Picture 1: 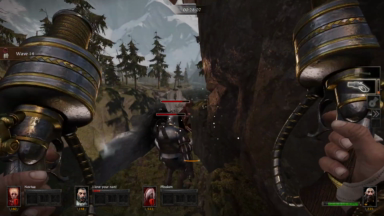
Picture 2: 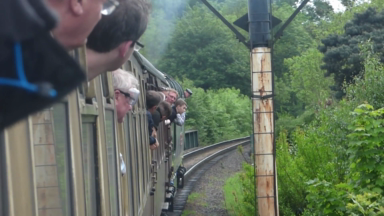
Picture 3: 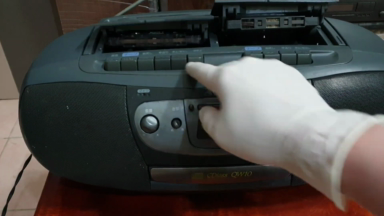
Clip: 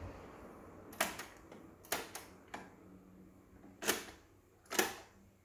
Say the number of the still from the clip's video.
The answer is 3